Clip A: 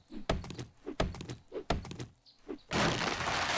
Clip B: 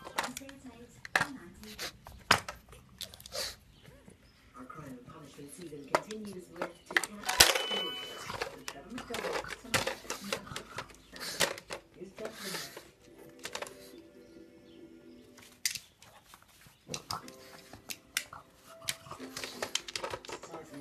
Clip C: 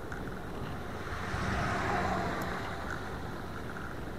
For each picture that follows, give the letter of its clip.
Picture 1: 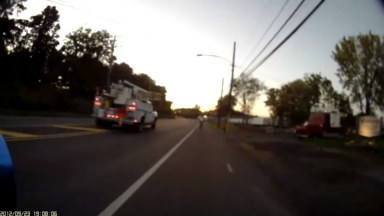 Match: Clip C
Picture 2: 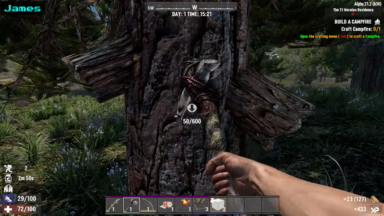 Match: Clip A